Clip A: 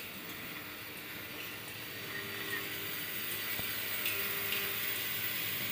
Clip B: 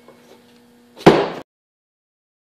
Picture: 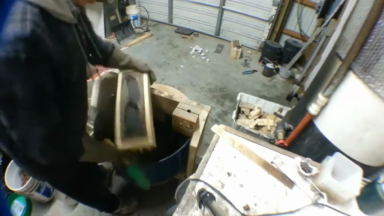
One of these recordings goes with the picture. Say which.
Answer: B